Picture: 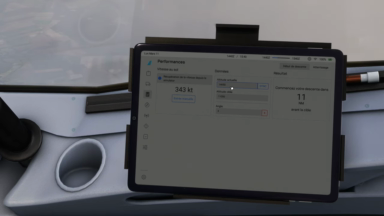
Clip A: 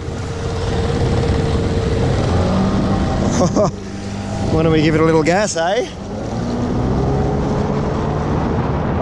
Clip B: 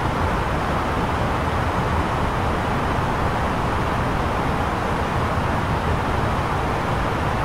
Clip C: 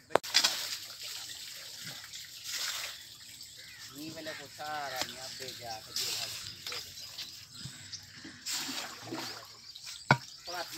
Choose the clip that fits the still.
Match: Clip B